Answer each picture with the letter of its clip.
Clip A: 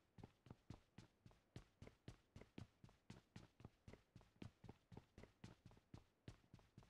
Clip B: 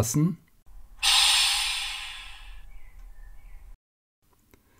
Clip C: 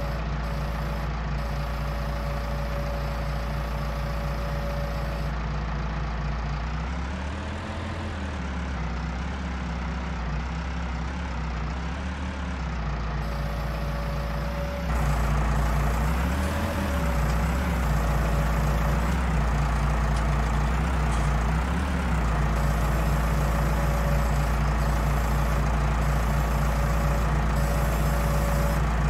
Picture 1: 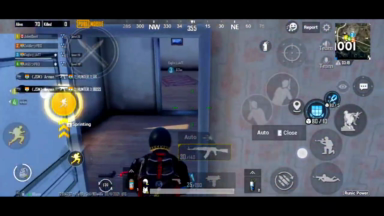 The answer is A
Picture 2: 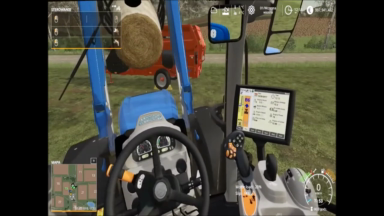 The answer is C